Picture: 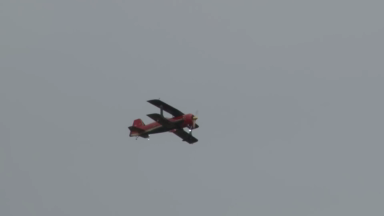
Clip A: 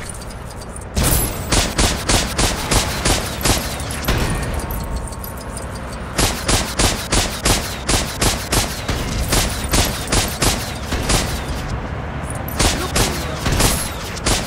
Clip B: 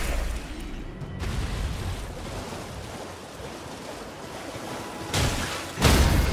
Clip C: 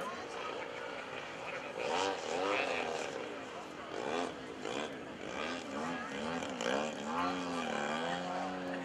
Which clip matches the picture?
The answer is C